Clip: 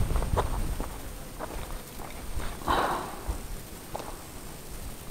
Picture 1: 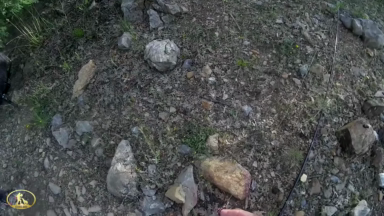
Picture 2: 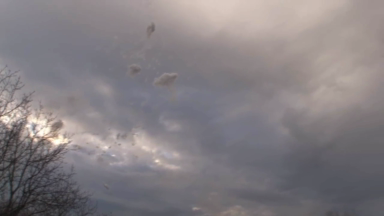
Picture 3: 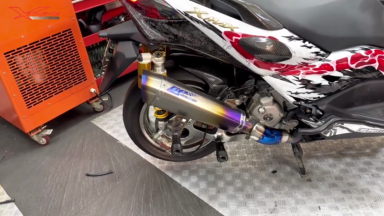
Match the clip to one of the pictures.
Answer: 1